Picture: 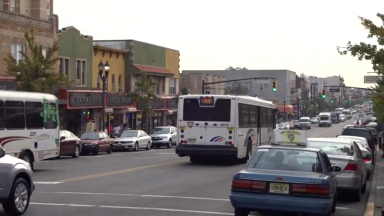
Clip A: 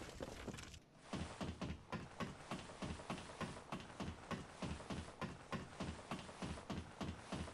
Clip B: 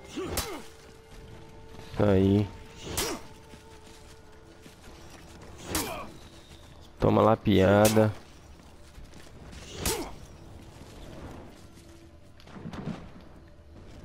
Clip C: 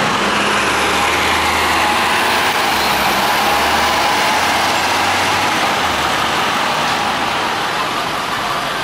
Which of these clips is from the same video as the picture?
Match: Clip C